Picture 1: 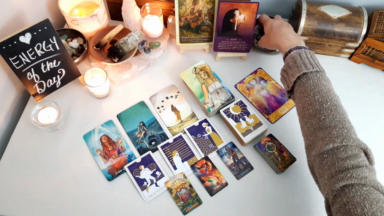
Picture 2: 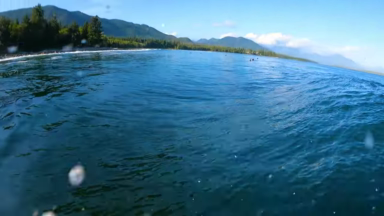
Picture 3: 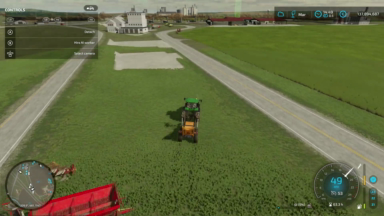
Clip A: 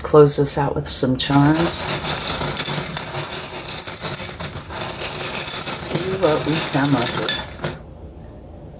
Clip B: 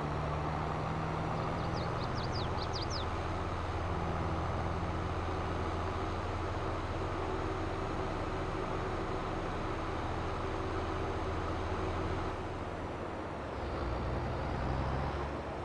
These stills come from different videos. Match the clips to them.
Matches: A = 1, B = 3